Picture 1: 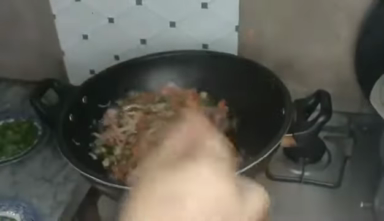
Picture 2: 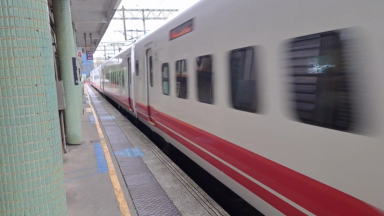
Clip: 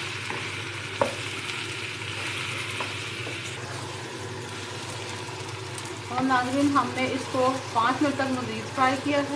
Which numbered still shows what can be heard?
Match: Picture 1